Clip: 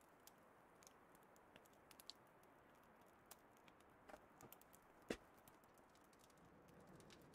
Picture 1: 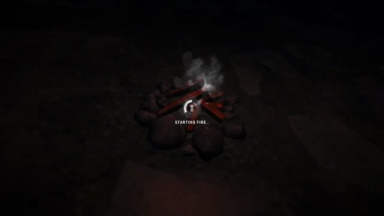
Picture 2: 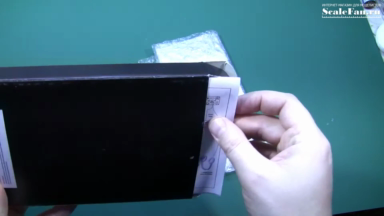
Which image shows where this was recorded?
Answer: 1